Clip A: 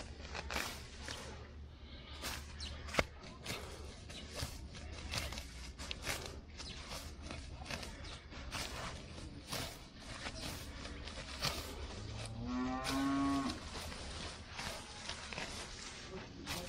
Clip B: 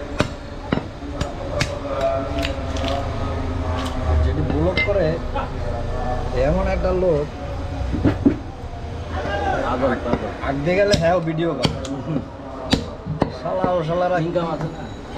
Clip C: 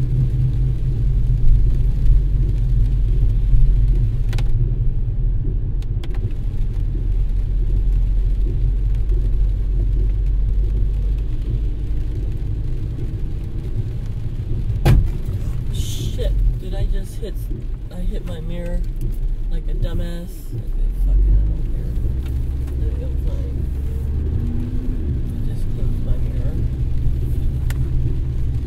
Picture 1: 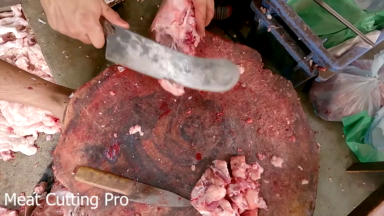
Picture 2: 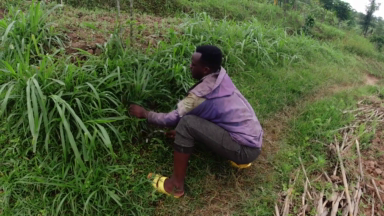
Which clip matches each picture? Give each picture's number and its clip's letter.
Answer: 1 B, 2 A